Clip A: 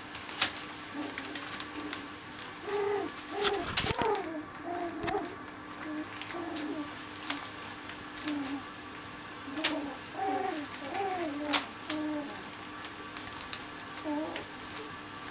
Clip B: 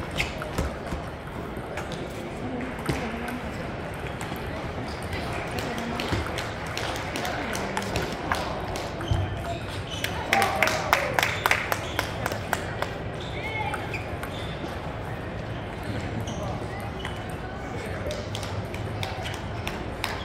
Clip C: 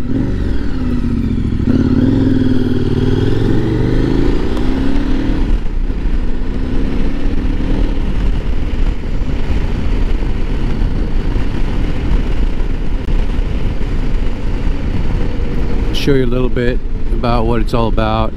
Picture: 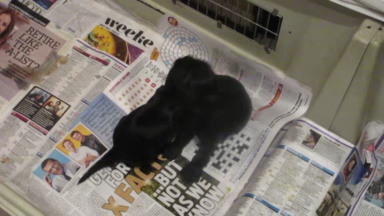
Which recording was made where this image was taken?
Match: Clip A